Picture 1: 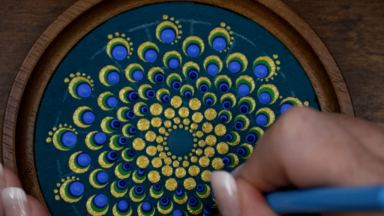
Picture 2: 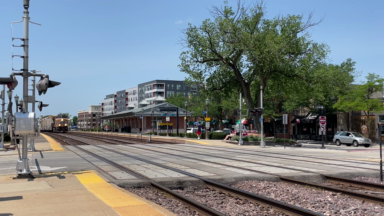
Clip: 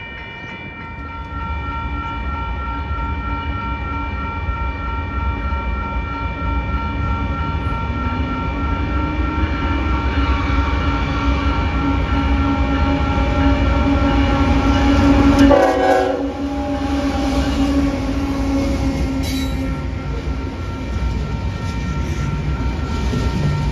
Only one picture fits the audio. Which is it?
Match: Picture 2